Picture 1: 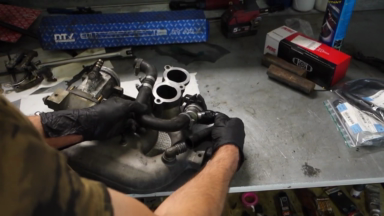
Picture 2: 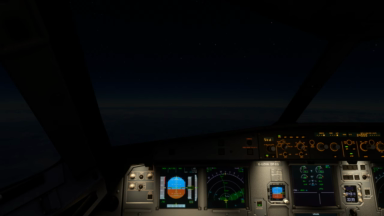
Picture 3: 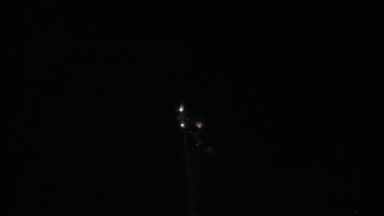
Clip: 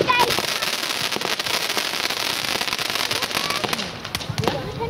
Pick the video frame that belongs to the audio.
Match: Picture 3